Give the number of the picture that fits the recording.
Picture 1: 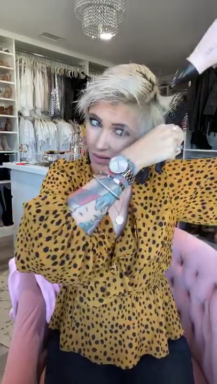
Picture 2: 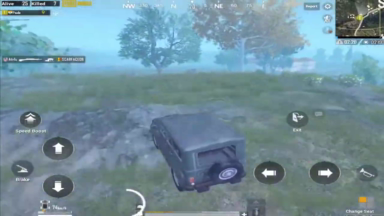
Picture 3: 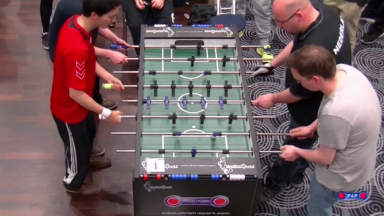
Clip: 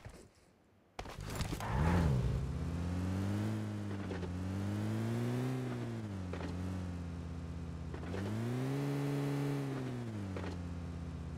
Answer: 2